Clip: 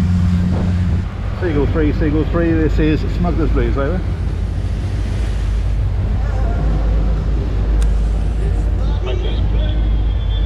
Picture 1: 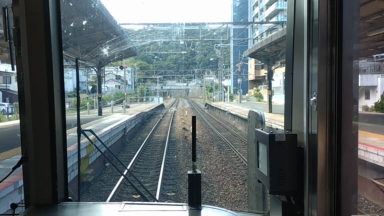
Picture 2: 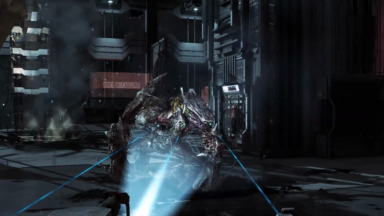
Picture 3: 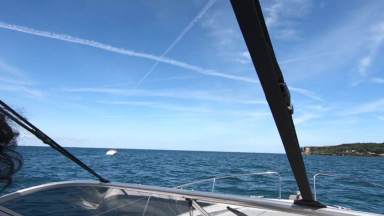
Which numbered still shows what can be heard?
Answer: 3